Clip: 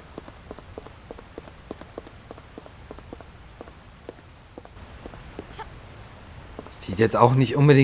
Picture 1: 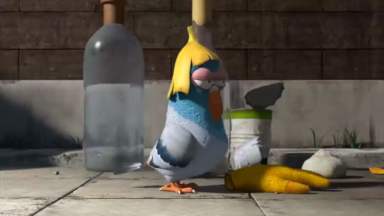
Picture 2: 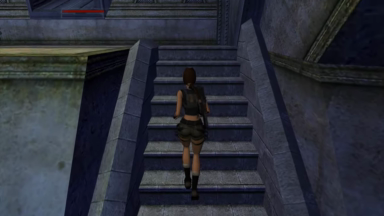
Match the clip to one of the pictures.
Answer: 2